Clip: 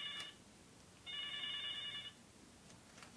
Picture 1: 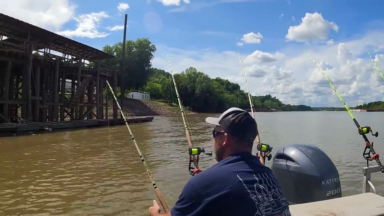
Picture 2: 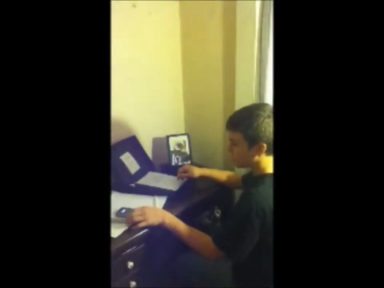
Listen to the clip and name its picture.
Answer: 2